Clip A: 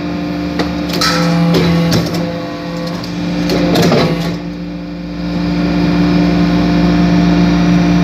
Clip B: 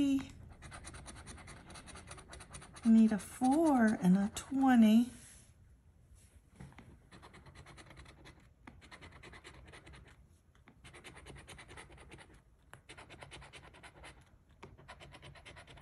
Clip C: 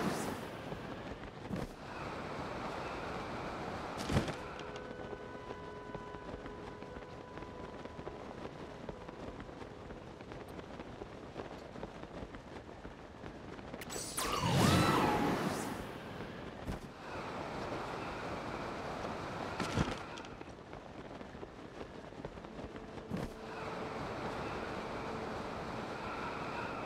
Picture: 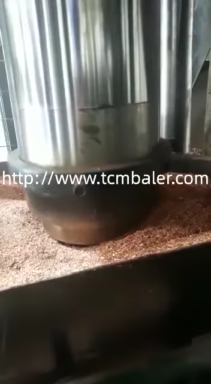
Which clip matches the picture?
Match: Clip A